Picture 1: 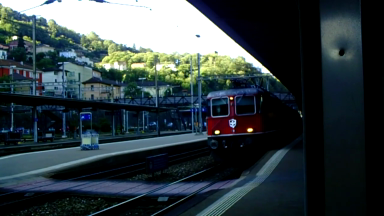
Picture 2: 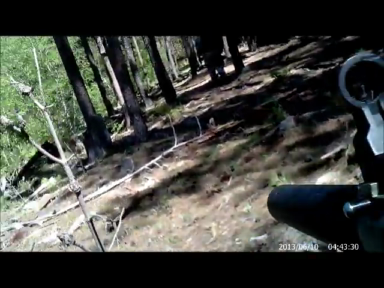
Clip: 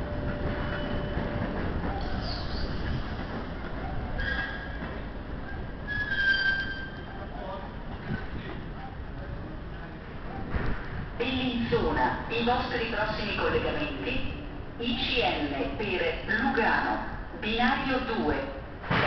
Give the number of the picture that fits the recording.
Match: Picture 1